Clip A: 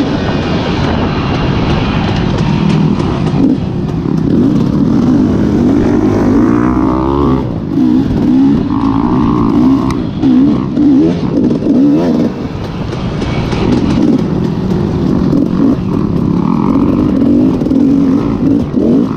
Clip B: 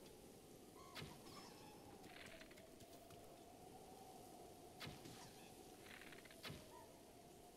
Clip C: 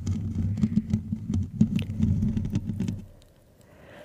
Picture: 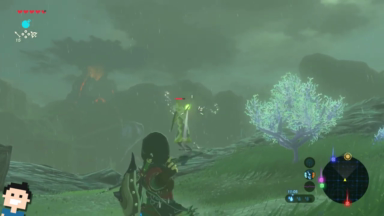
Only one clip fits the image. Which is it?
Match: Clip B